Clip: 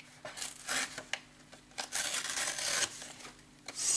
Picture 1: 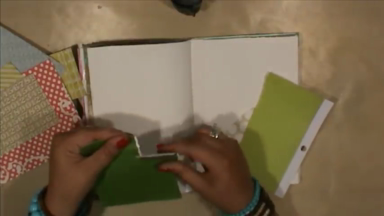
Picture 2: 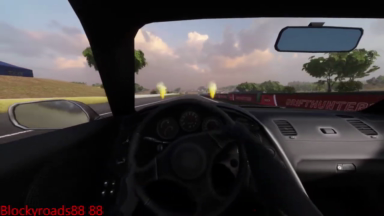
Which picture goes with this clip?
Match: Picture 1